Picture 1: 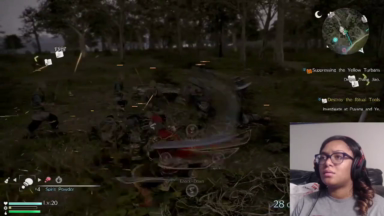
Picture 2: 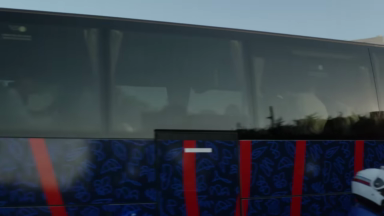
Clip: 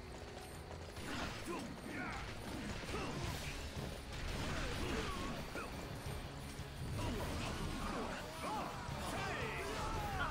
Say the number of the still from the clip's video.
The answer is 1